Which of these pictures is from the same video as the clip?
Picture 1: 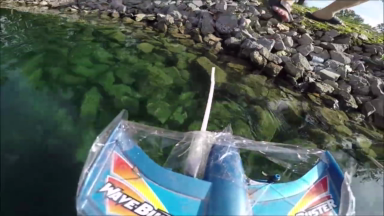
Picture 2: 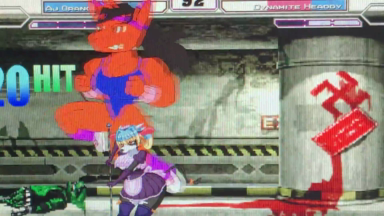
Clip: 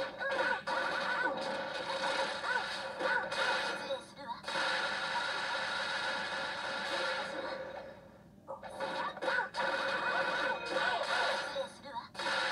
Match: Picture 2